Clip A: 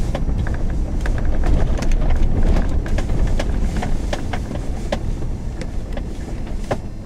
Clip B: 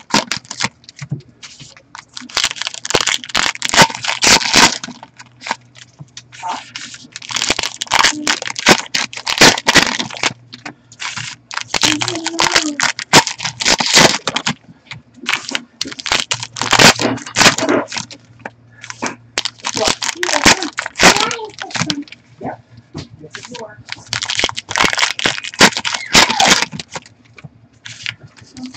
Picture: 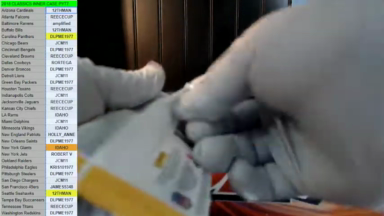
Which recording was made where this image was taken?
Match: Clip B